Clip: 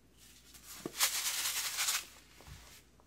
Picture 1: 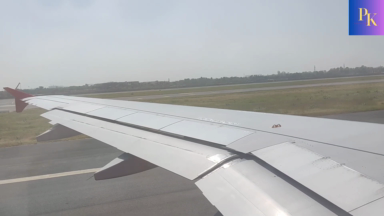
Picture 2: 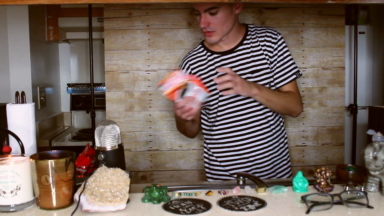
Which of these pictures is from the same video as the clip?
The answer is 2